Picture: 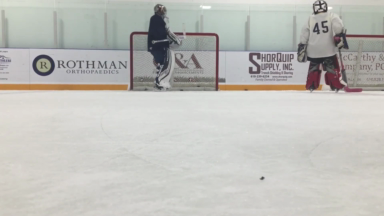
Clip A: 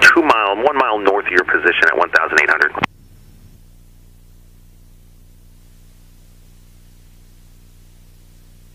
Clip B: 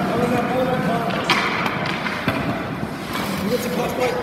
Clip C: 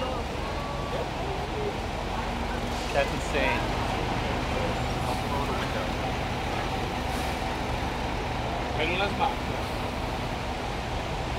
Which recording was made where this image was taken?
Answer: B